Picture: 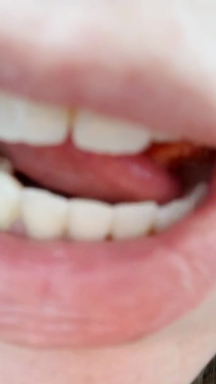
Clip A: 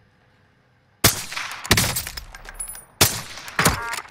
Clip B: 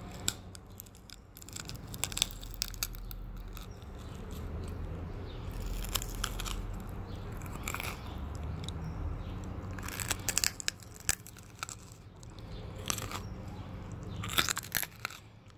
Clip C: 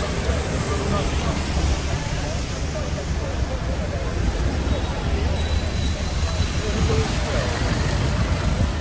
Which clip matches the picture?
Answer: B